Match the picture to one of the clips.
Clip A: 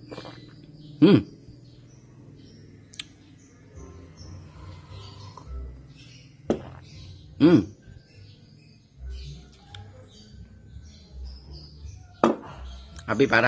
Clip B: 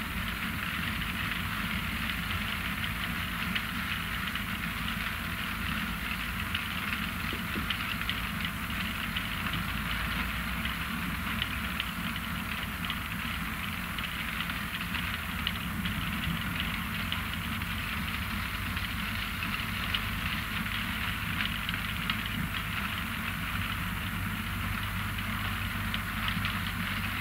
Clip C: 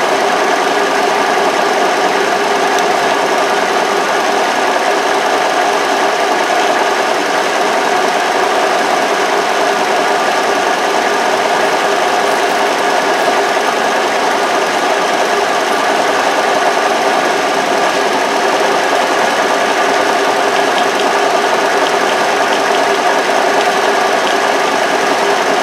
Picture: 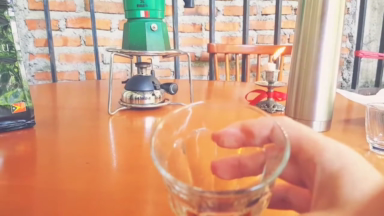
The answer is A